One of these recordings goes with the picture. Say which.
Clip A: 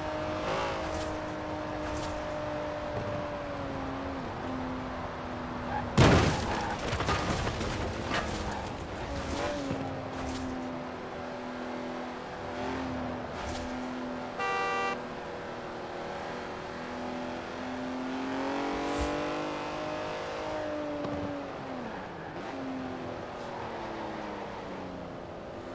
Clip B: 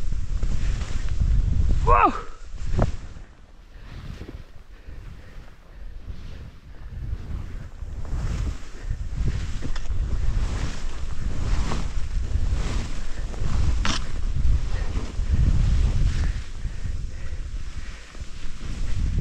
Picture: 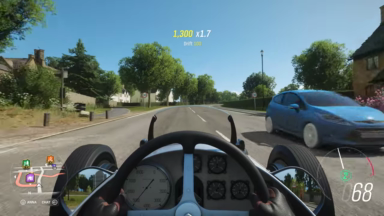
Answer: A